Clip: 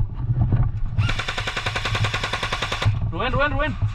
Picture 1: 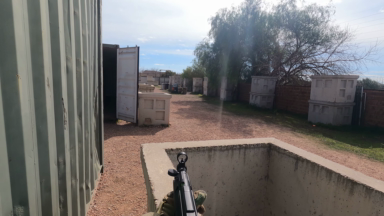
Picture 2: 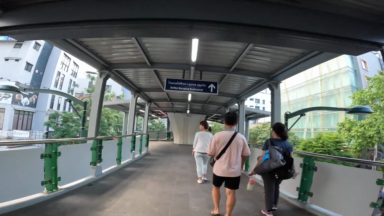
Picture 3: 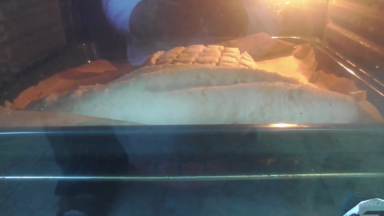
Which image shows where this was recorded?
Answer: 1